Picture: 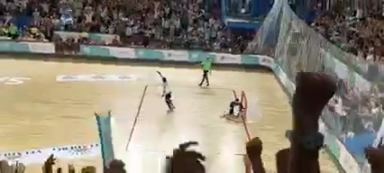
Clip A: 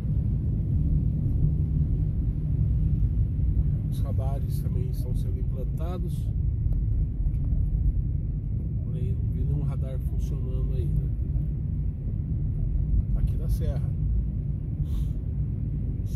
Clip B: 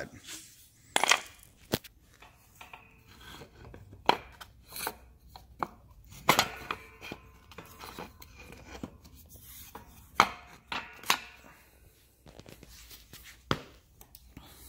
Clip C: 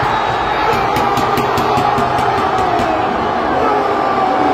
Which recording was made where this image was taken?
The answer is C